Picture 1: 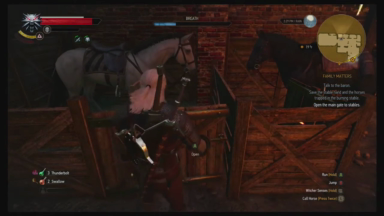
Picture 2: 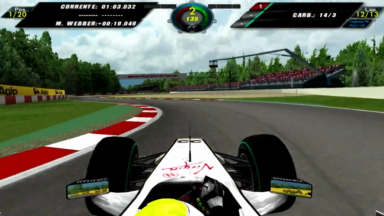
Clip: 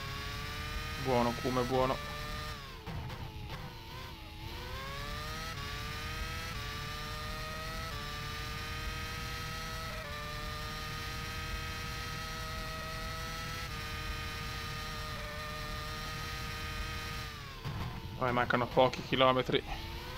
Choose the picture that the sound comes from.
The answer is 2